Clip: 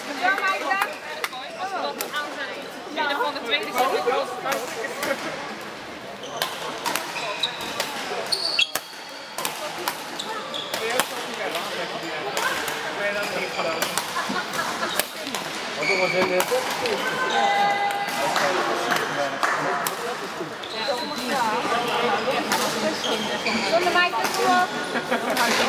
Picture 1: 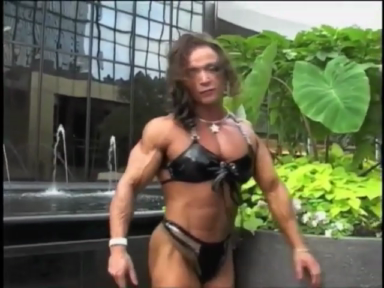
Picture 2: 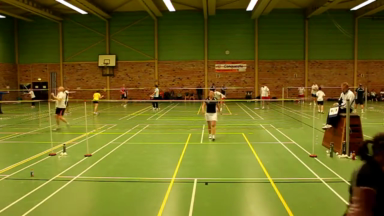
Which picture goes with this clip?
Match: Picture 2